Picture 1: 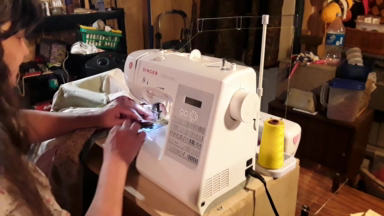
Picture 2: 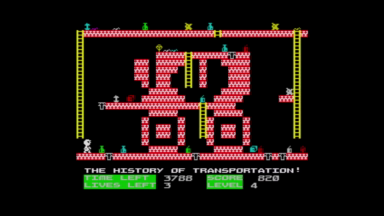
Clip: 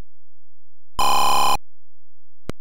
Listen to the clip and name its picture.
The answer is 2